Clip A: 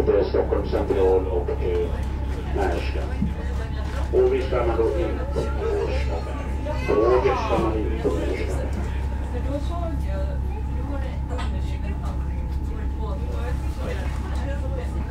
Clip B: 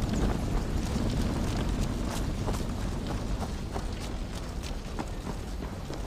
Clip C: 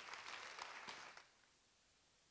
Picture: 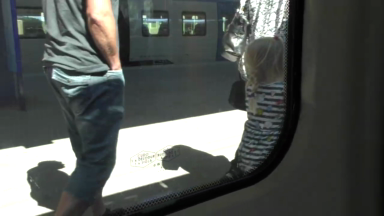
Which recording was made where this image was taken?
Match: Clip A